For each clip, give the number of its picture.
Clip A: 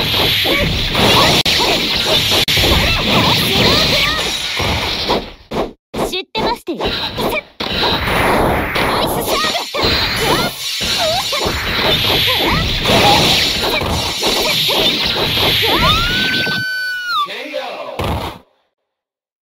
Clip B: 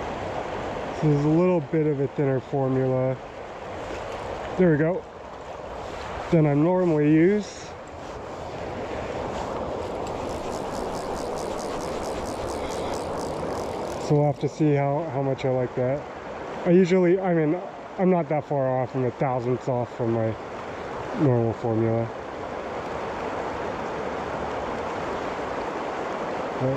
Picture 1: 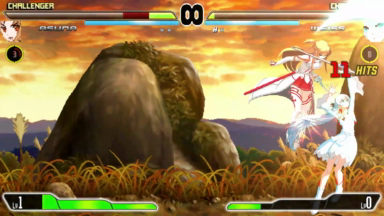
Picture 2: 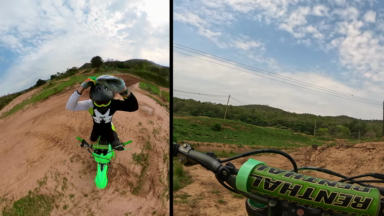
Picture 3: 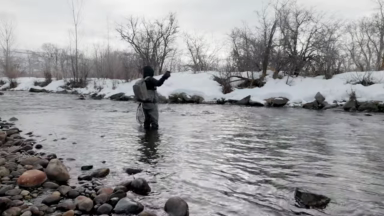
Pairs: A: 1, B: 3